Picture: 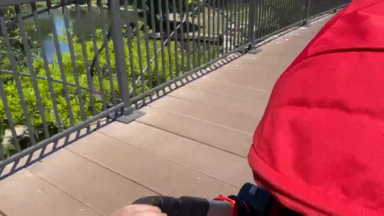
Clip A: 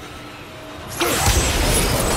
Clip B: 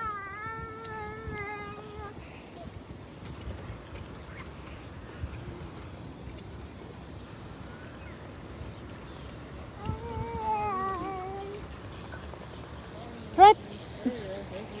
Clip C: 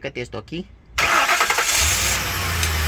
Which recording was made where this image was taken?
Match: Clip B